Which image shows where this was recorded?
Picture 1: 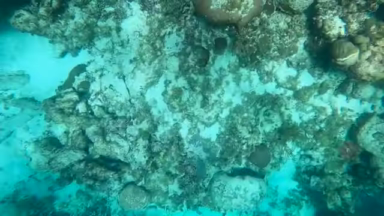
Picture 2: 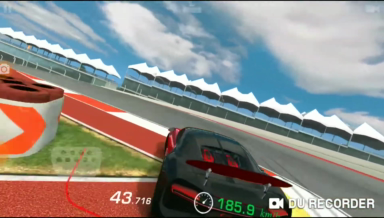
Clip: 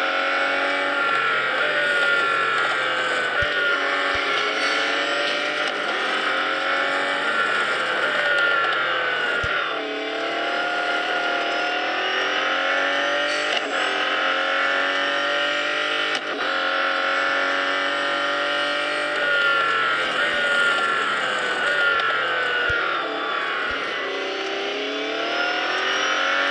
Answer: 2